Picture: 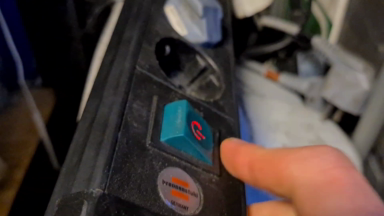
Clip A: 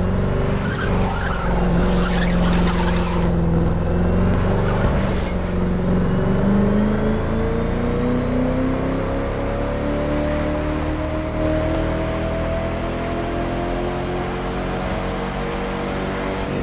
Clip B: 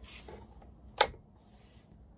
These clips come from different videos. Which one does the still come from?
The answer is B